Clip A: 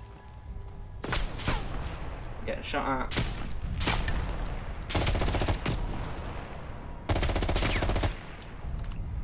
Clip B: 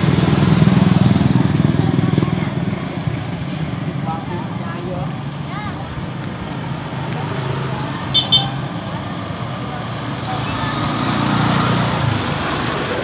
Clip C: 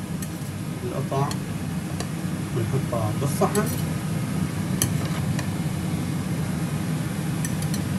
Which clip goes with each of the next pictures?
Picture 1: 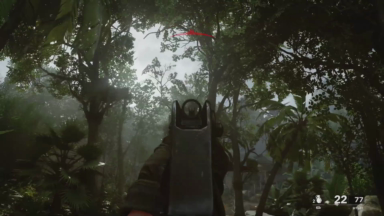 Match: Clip A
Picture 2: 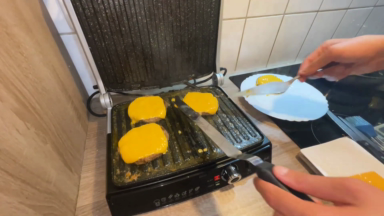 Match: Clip C